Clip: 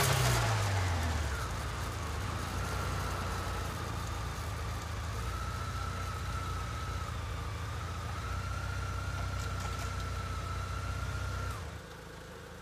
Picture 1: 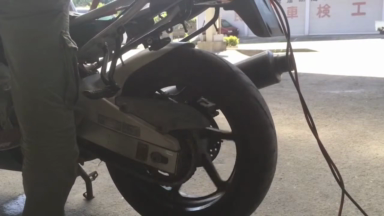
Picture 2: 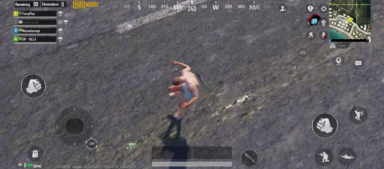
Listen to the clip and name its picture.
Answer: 1